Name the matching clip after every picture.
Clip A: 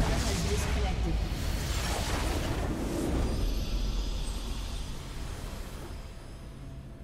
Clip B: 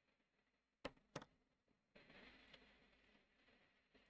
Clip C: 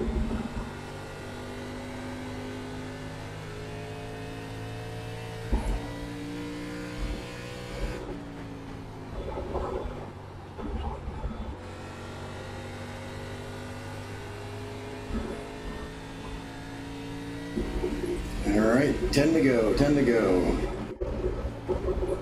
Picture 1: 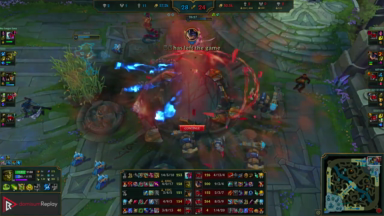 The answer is A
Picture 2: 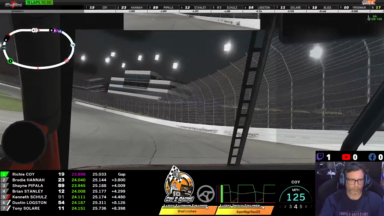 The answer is C